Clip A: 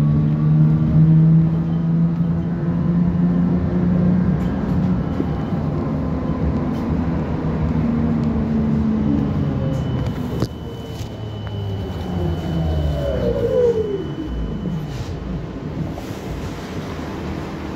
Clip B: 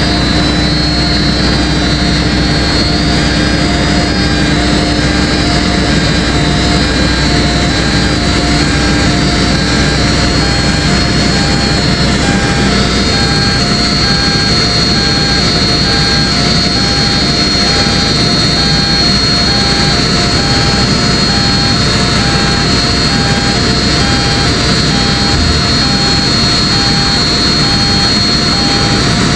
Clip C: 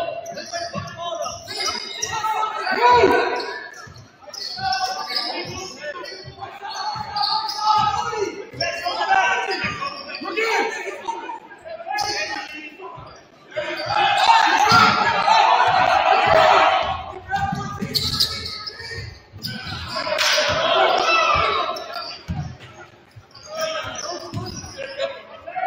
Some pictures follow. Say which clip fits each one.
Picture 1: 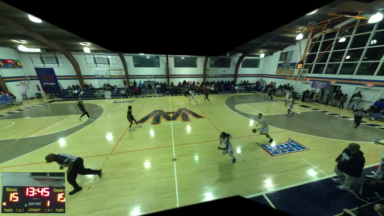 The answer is C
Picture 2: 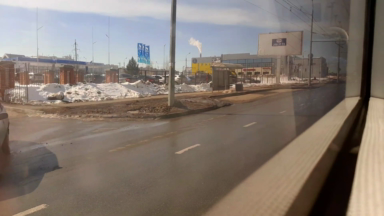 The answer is A